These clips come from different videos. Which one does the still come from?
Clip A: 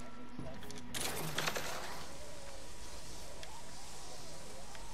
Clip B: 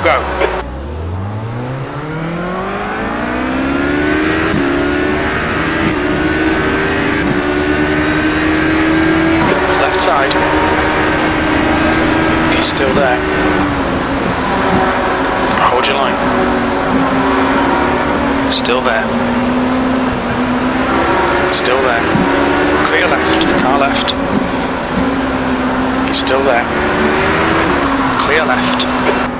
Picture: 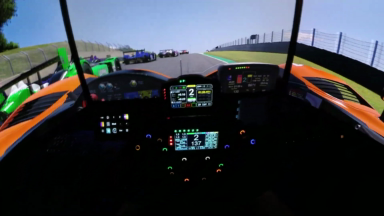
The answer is B